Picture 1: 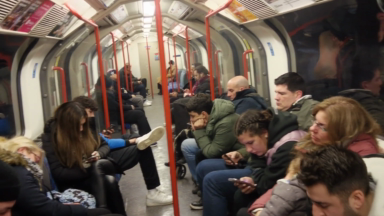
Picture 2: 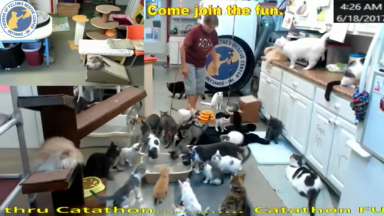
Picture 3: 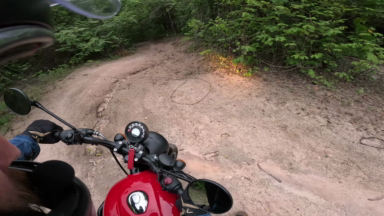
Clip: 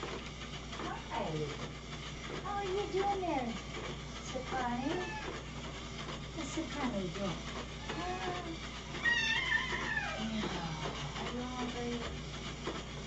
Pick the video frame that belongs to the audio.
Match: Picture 2